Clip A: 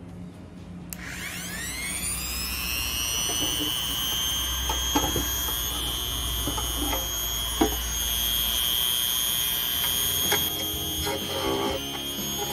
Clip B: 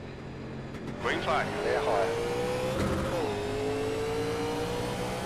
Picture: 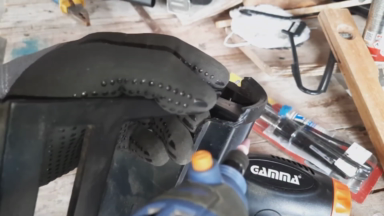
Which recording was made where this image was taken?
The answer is A